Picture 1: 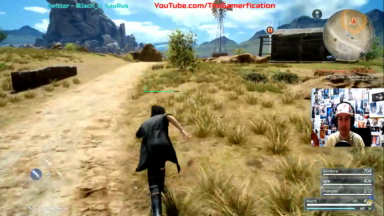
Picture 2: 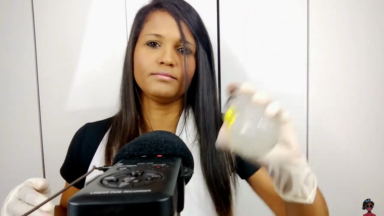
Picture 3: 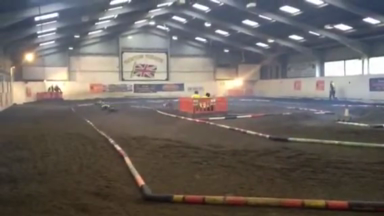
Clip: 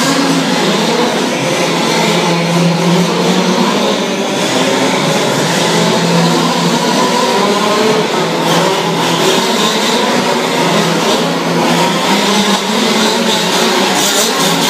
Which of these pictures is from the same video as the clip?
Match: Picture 3